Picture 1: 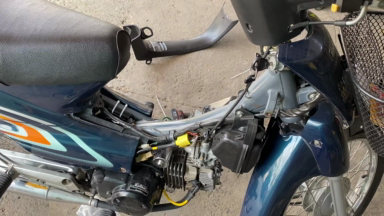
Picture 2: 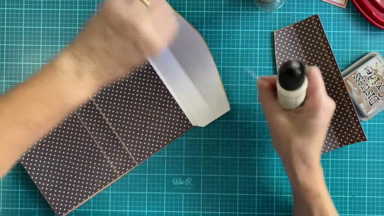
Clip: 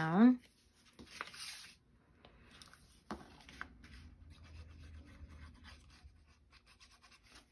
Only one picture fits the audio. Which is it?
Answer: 2